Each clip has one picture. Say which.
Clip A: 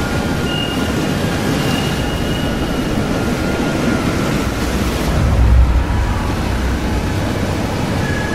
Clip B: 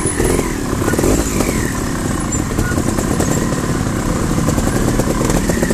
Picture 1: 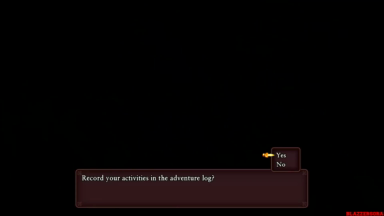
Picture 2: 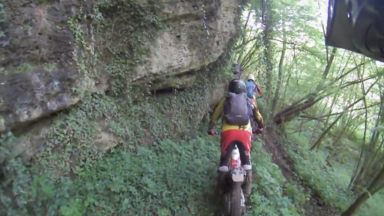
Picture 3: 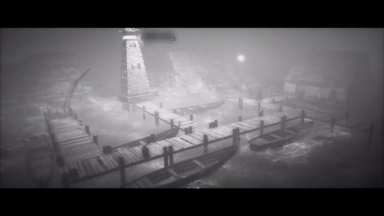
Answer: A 3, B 2